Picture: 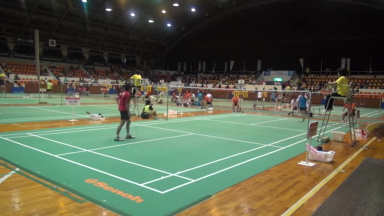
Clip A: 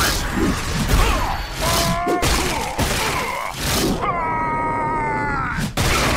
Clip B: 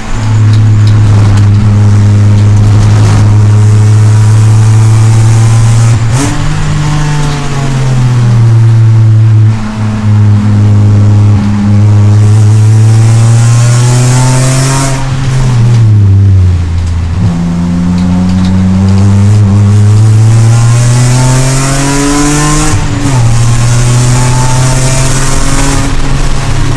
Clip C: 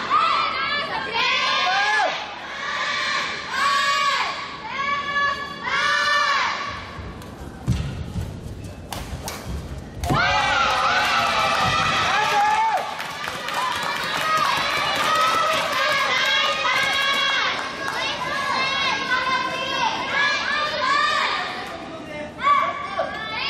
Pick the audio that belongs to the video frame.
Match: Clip C